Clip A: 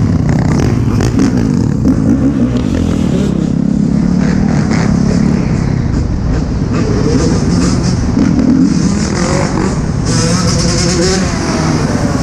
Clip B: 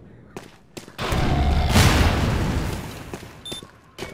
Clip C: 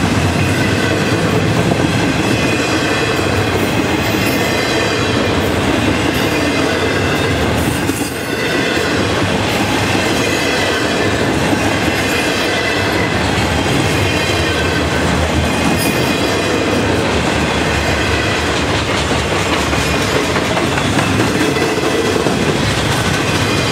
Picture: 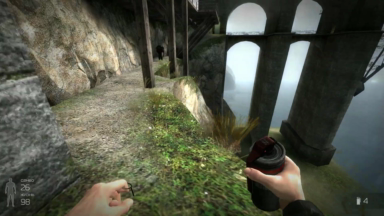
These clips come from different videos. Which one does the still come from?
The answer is B